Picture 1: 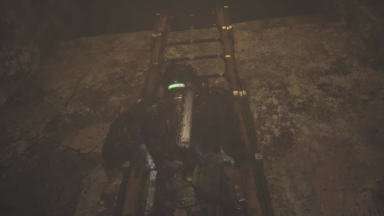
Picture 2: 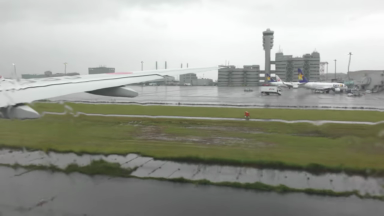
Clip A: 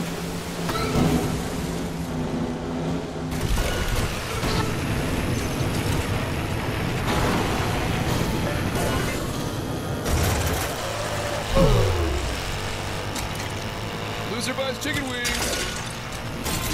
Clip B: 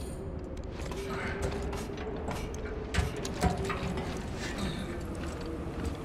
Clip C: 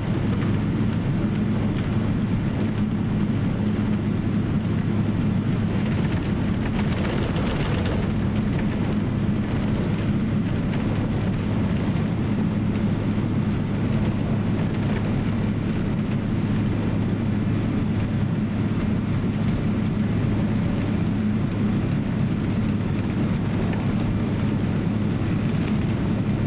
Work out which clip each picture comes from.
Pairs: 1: B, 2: C